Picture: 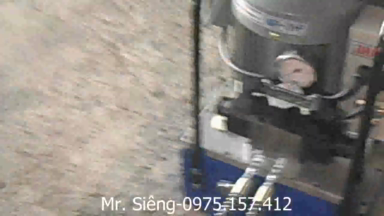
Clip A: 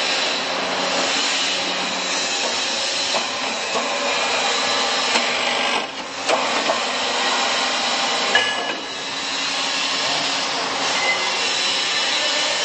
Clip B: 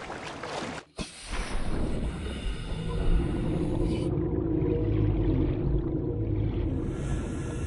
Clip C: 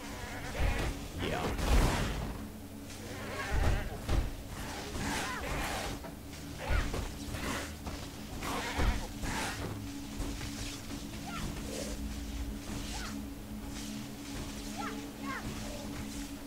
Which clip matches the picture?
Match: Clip A